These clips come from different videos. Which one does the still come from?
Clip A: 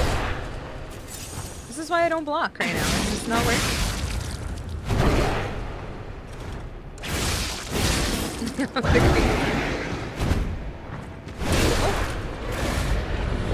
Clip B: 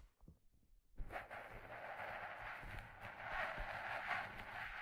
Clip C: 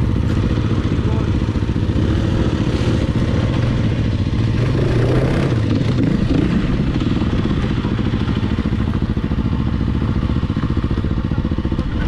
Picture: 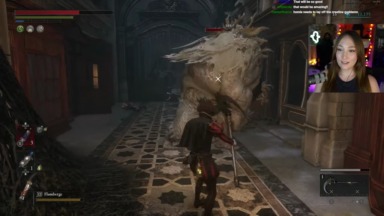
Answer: A